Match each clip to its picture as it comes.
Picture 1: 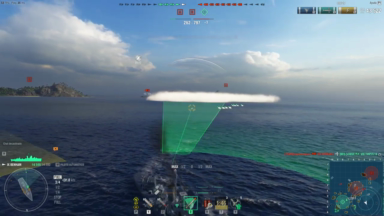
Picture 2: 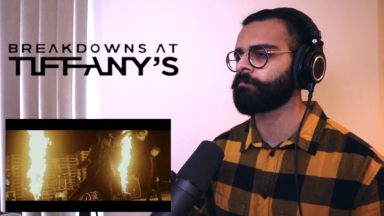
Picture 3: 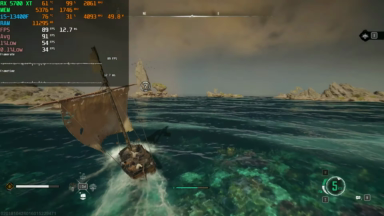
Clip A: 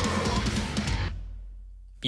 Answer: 2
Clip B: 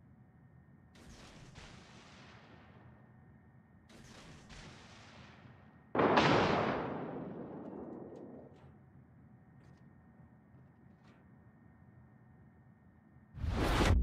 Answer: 1